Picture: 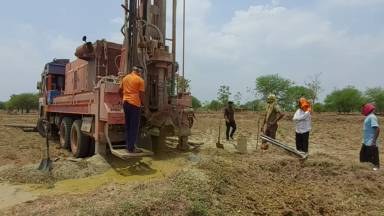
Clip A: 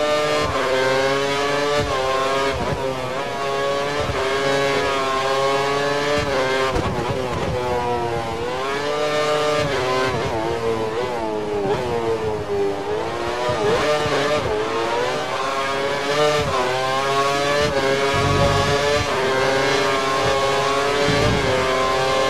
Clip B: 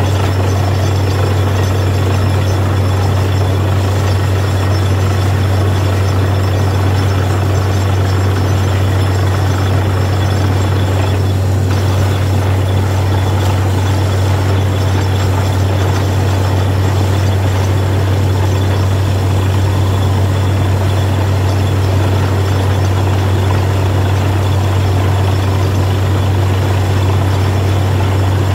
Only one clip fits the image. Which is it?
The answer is B